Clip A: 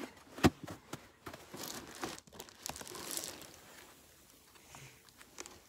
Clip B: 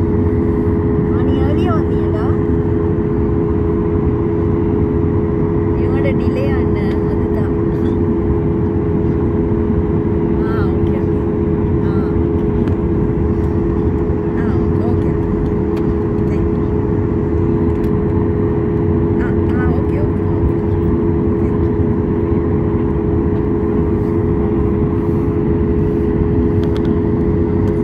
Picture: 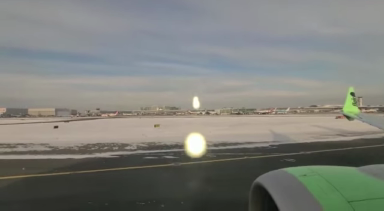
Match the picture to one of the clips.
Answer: B